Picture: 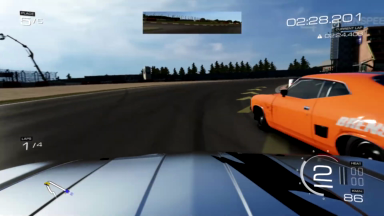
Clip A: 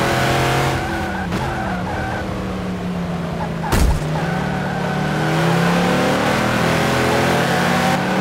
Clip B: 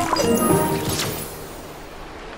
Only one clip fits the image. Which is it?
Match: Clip A